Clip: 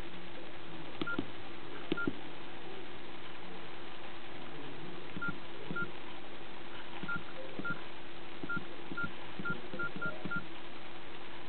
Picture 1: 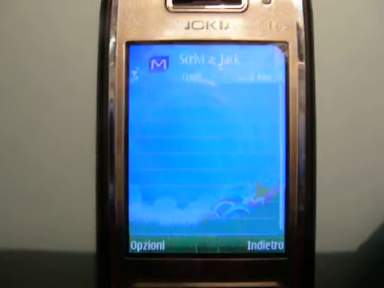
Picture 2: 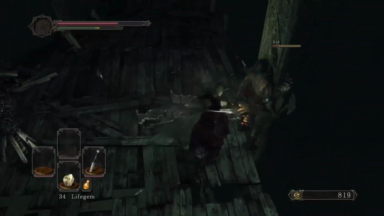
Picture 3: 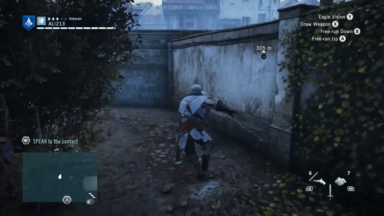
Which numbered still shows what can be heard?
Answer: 1